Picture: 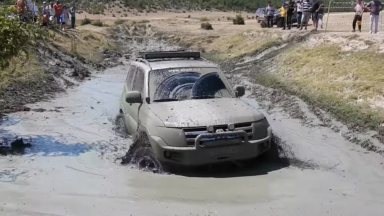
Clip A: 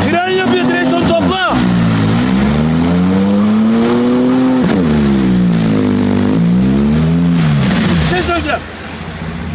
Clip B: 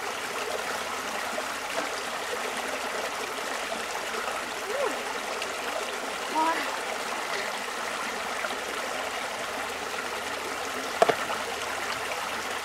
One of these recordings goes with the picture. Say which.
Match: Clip A